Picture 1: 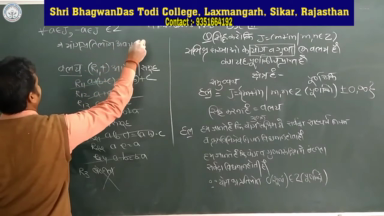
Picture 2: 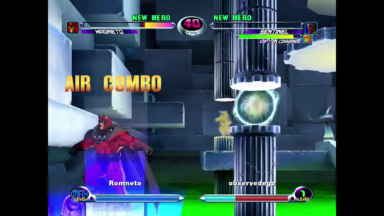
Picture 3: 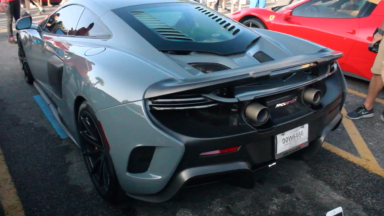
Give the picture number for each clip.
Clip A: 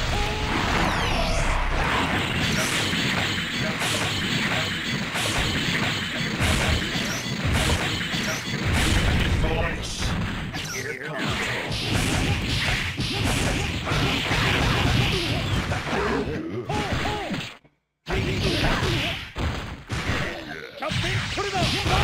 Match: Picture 2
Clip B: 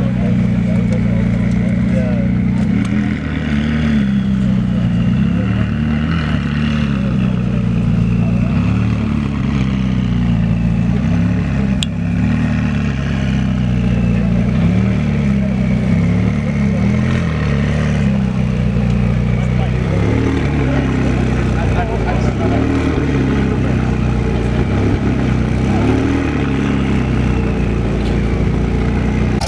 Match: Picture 3